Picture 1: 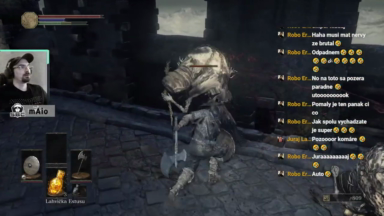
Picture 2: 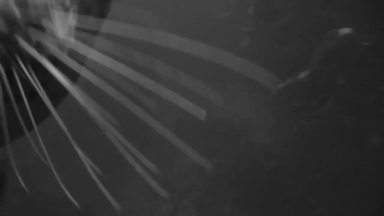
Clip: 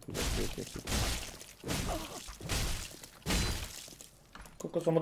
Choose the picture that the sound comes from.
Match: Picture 1